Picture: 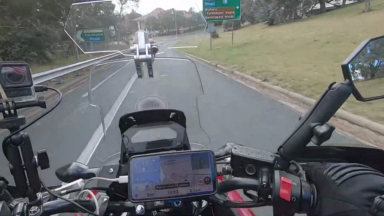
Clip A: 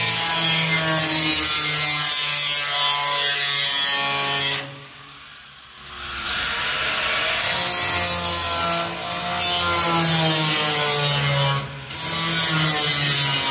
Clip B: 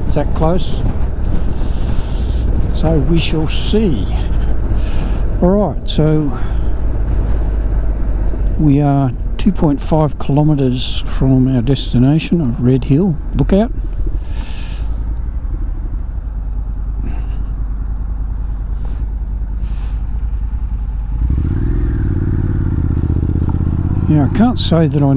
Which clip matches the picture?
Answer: B